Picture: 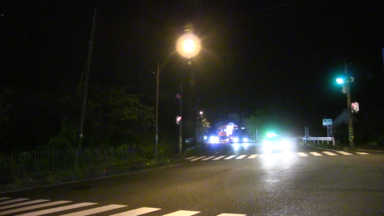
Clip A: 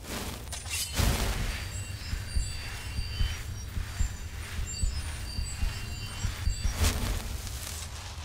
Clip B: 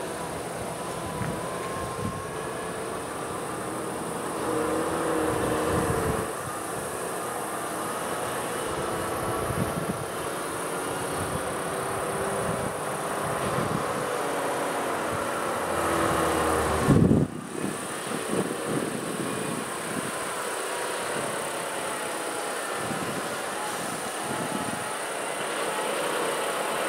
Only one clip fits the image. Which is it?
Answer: B